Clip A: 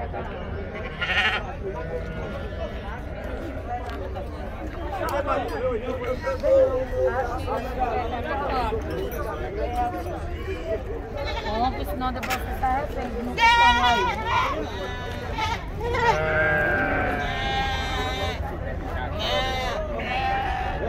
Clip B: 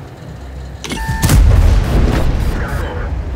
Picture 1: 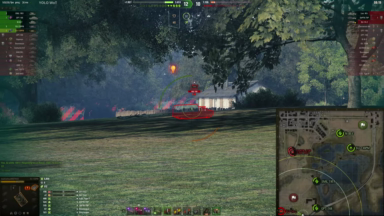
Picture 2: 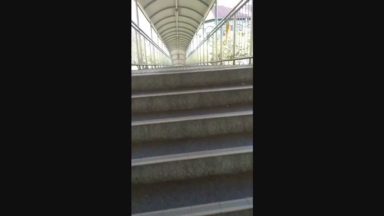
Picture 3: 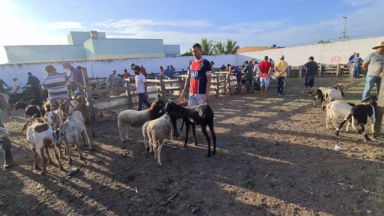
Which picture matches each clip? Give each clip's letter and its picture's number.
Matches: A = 3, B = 1